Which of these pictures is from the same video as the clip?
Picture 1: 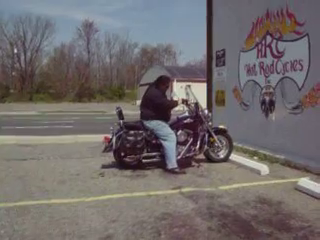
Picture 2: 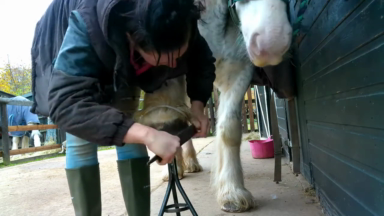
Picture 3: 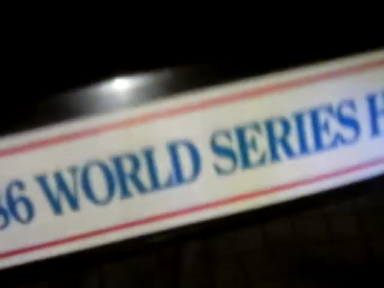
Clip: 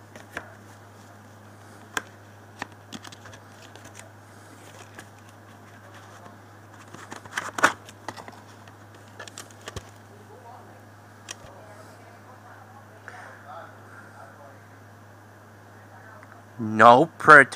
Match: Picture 3